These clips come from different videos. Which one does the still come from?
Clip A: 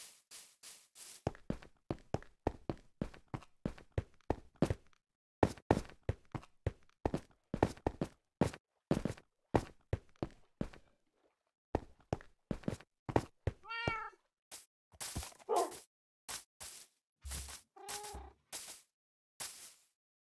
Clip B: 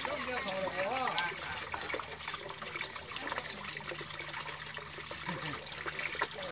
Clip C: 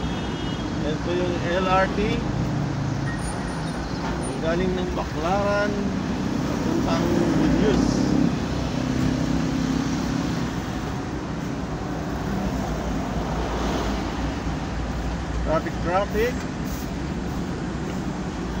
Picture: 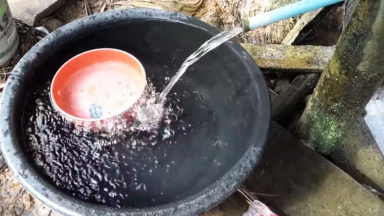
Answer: B